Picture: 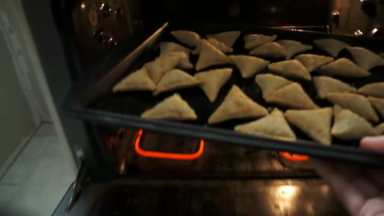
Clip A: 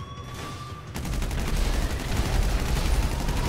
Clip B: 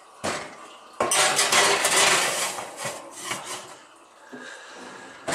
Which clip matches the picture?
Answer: B